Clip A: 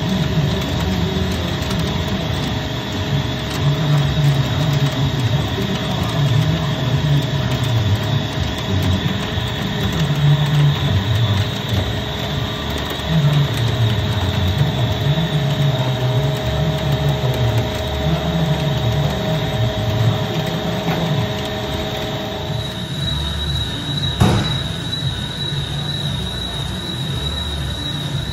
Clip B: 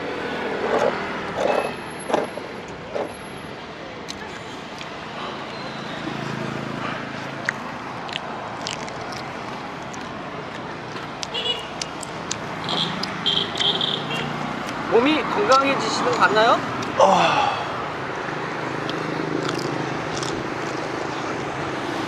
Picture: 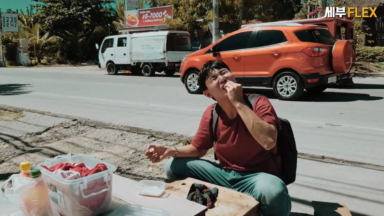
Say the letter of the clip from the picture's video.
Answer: B